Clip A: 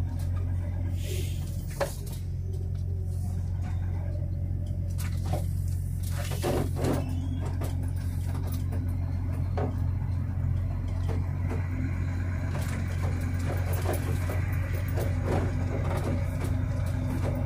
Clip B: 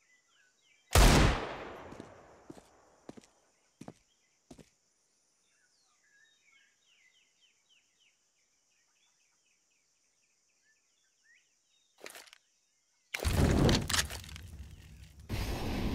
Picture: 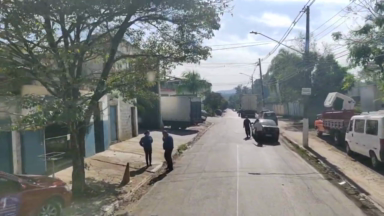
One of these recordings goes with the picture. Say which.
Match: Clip A